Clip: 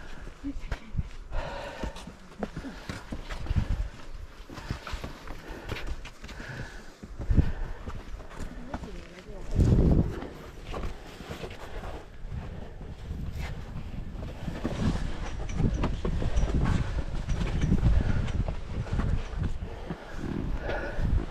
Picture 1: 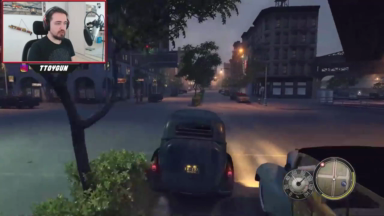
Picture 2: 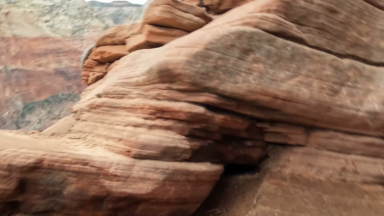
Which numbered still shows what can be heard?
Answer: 2